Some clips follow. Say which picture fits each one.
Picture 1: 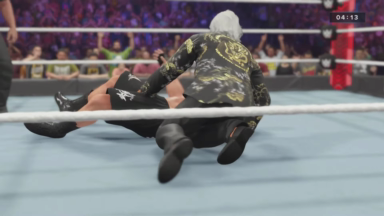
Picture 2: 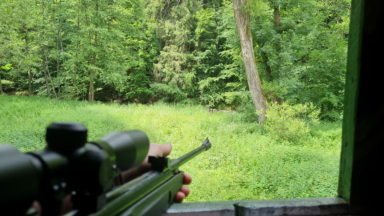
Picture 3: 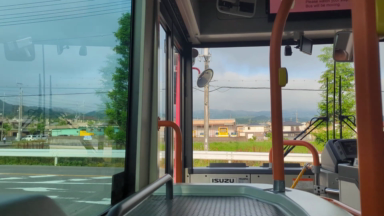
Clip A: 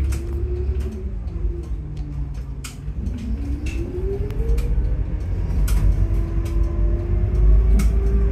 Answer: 3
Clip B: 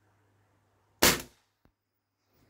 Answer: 2